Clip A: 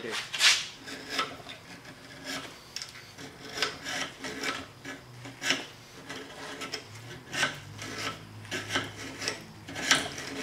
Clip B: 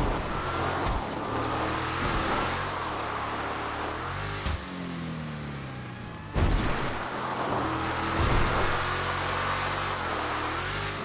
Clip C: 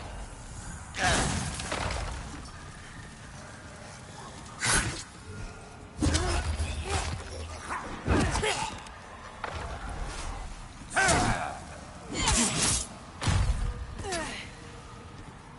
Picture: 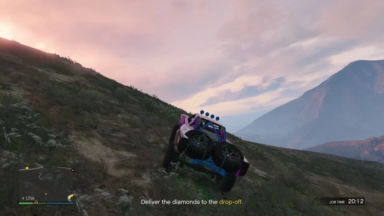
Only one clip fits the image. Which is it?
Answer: B